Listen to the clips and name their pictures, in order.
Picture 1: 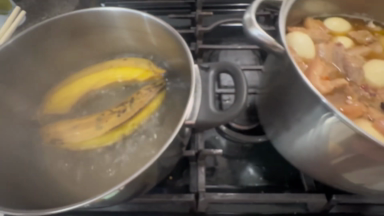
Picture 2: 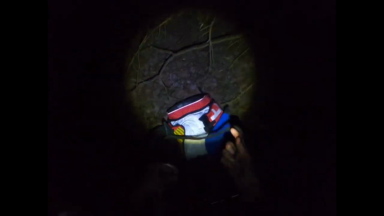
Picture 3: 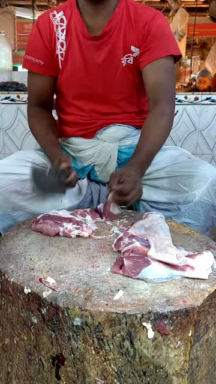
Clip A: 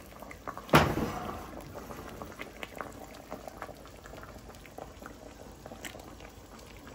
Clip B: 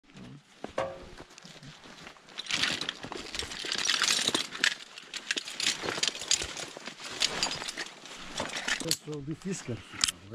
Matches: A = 1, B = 2